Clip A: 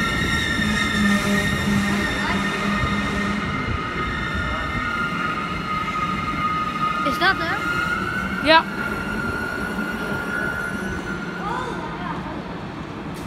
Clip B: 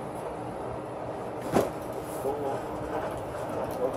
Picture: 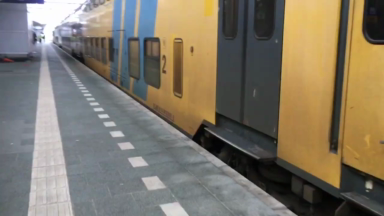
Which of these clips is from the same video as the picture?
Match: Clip A